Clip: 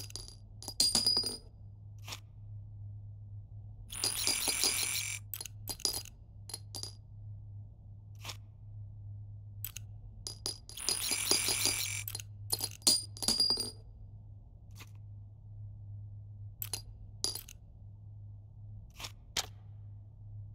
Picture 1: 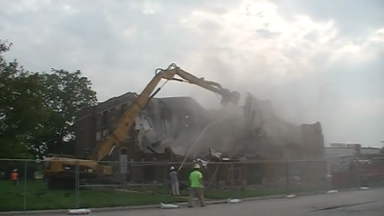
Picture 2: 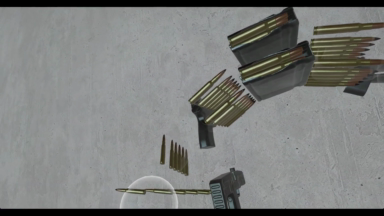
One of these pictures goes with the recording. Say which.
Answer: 2